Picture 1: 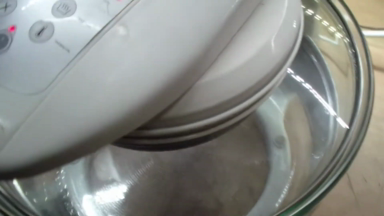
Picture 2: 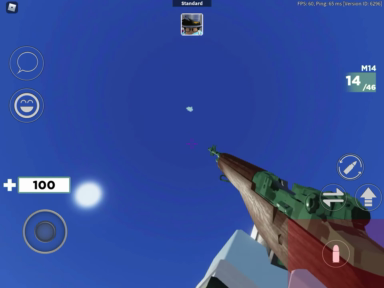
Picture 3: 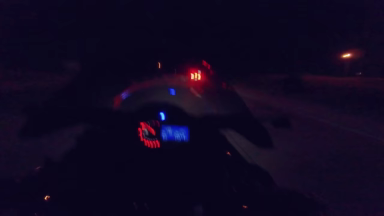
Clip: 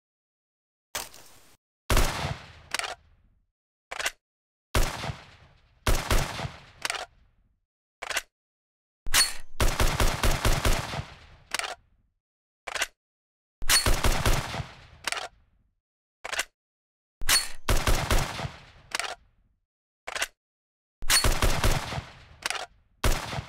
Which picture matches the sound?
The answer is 2